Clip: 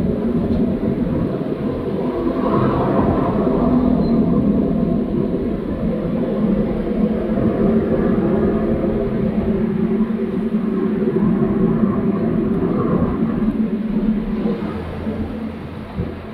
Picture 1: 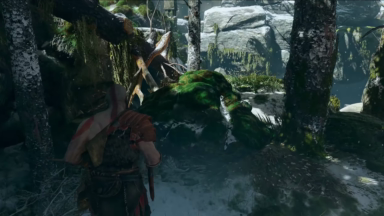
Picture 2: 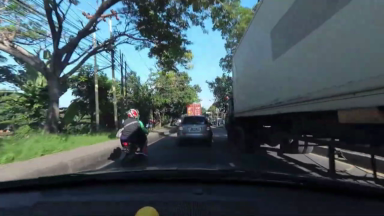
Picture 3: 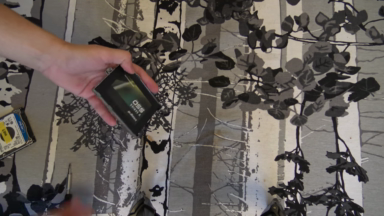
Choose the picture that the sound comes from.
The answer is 2